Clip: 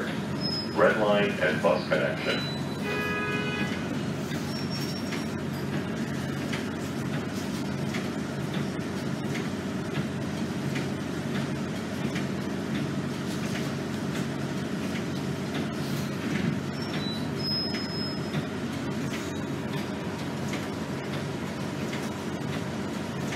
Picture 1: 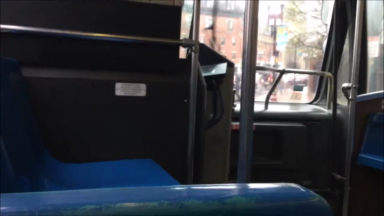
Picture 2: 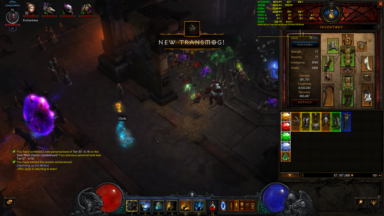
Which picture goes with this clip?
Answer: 1